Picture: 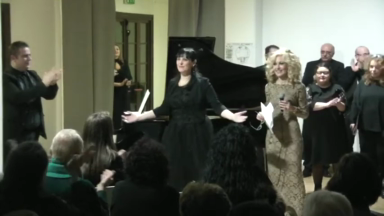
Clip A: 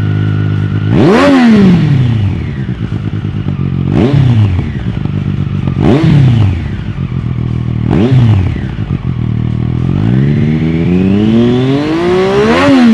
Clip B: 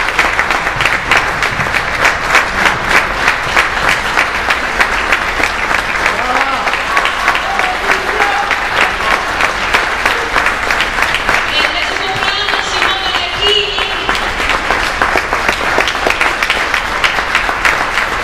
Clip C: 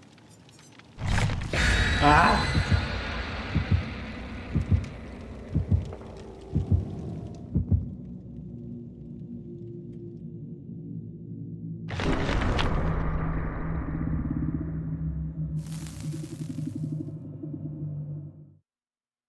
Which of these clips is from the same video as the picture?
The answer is B